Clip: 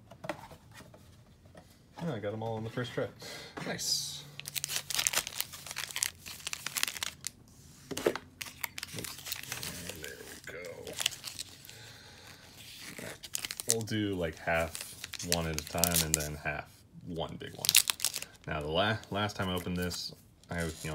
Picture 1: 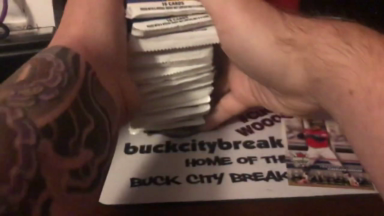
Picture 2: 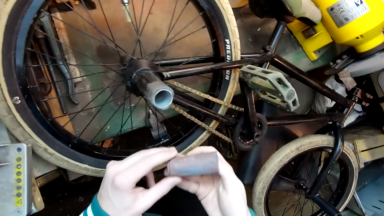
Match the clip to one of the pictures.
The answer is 1